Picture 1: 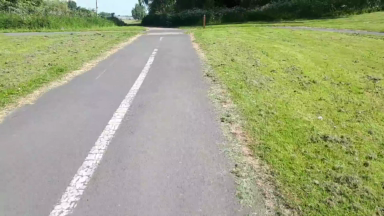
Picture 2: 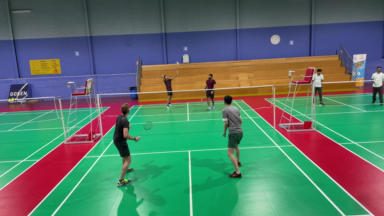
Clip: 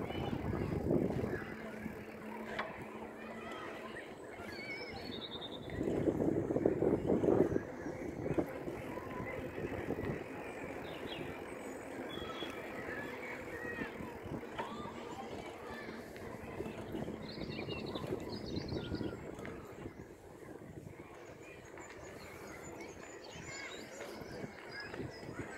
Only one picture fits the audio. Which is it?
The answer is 1